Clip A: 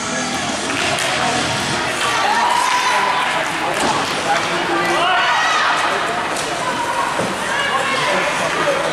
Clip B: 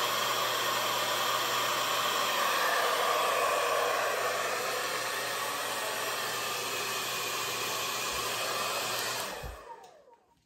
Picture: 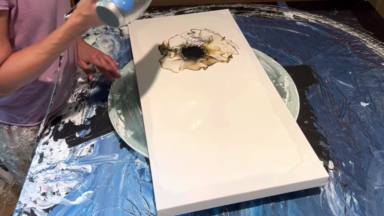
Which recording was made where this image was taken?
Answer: B